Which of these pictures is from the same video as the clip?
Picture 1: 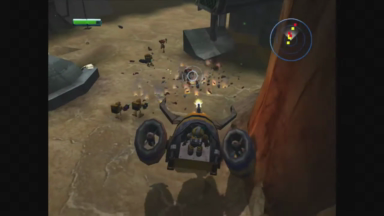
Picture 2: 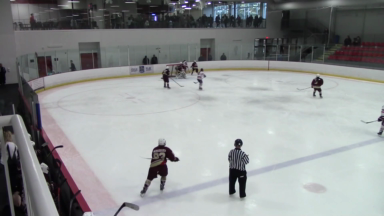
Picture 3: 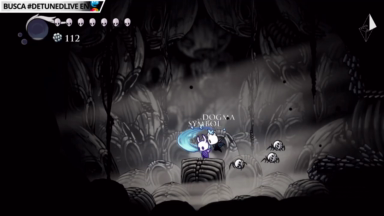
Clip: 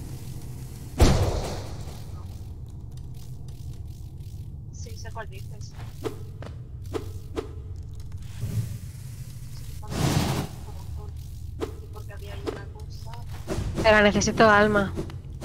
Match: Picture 3